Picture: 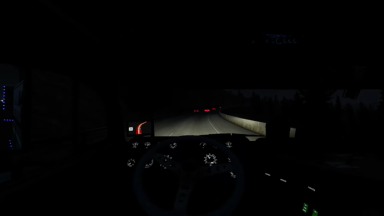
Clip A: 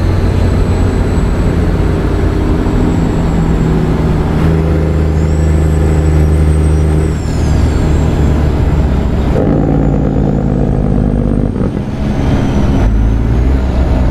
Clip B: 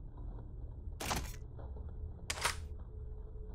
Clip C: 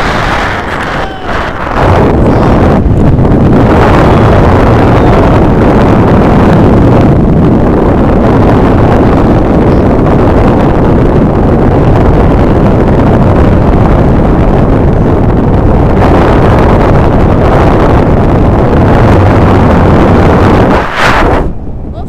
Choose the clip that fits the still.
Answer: A